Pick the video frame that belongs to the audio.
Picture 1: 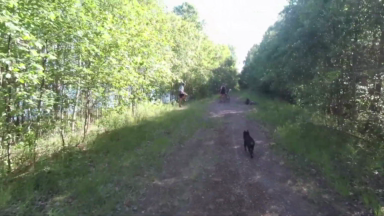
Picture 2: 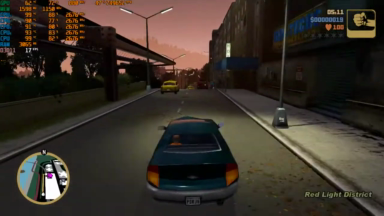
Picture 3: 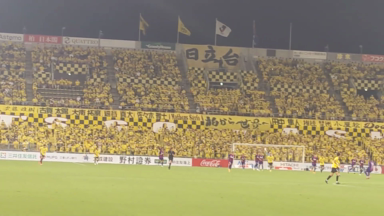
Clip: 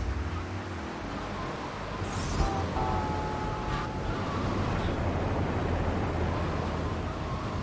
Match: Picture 2